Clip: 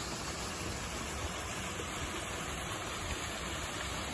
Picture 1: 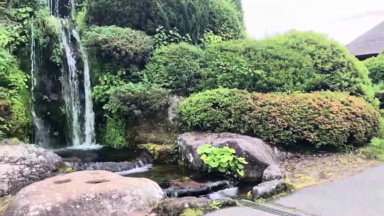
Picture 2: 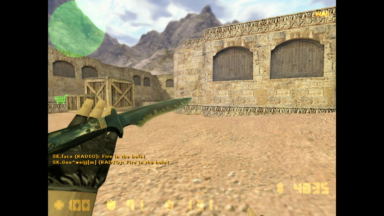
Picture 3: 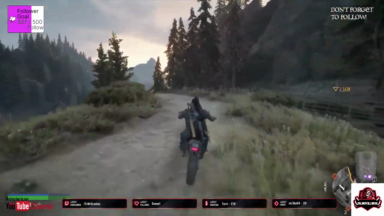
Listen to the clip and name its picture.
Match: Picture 1